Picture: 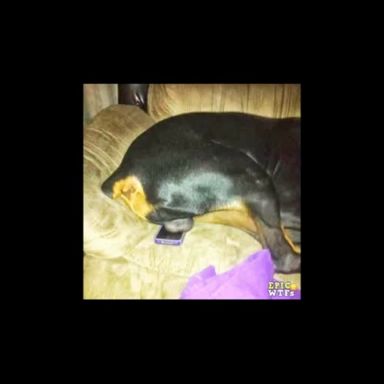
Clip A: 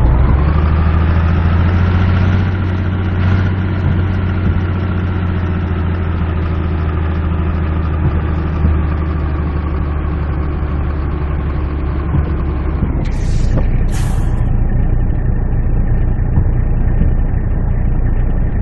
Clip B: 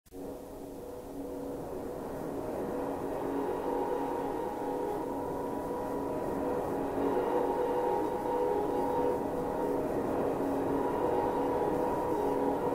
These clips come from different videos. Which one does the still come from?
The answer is B